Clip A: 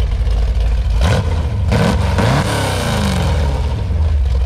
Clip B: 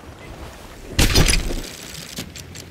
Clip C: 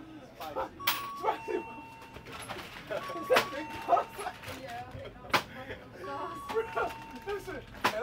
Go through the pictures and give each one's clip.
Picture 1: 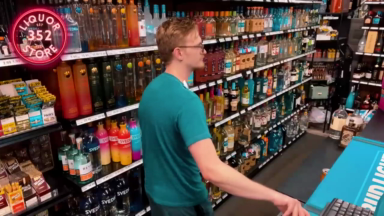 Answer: C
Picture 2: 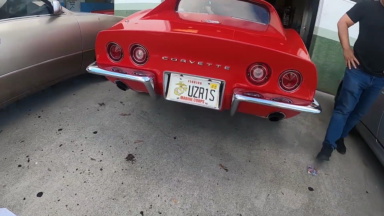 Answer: A